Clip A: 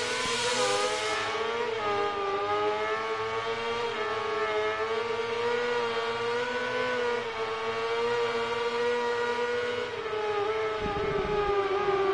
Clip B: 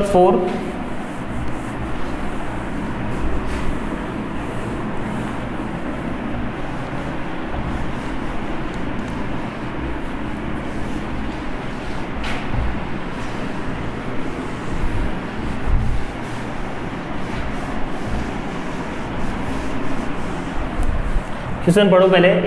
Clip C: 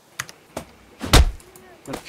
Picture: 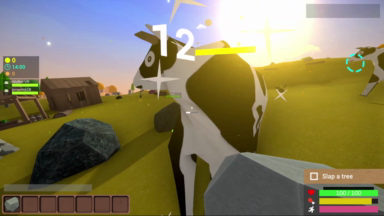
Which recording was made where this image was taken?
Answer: C